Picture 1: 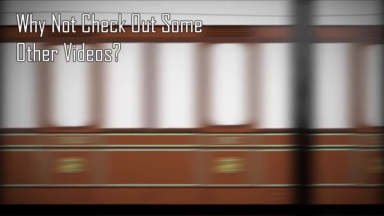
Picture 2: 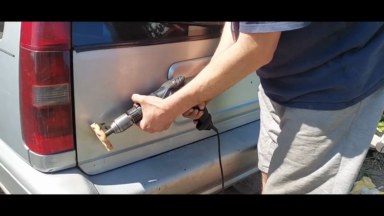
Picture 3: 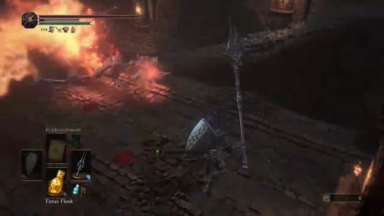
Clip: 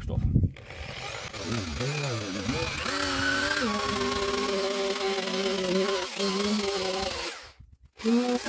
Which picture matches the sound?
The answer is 2